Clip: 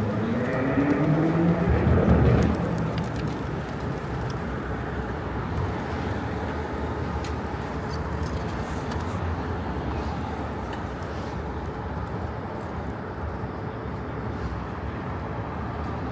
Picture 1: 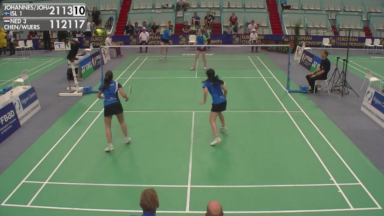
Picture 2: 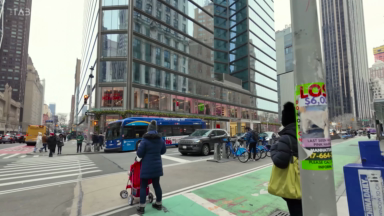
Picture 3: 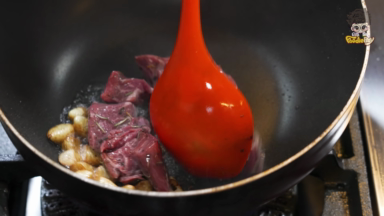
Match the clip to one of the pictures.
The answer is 2